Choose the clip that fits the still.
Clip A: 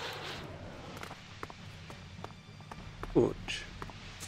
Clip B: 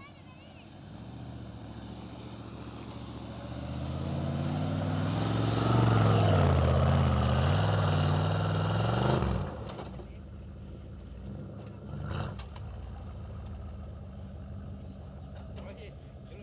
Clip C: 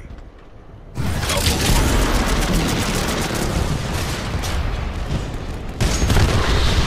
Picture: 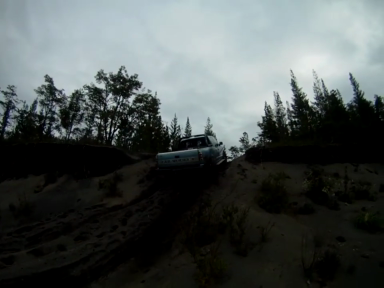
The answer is B